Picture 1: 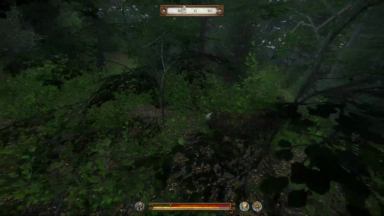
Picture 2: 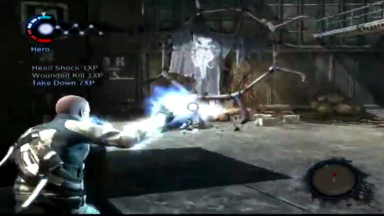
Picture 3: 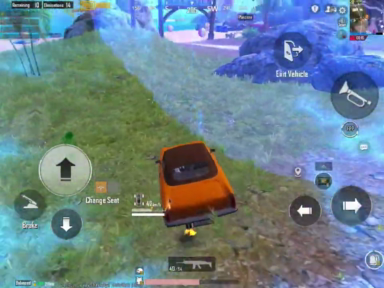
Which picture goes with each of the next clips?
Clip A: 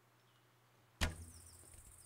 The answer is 1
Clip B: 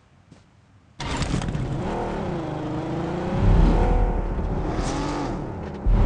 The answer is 3